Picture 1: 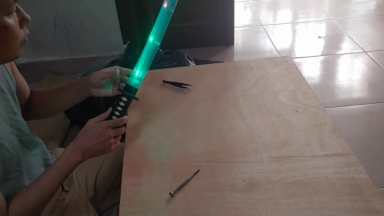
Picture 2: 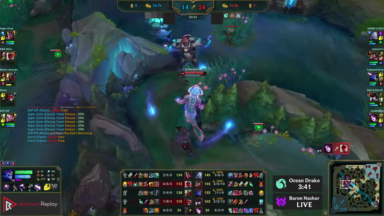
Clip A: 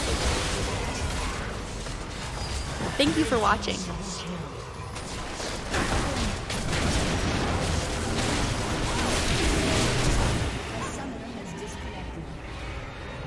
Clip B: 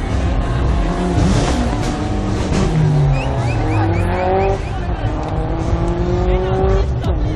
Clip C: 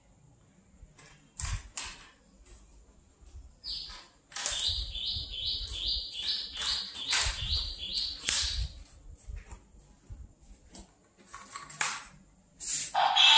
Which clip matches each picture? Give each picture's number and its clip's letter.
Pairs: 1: C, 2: A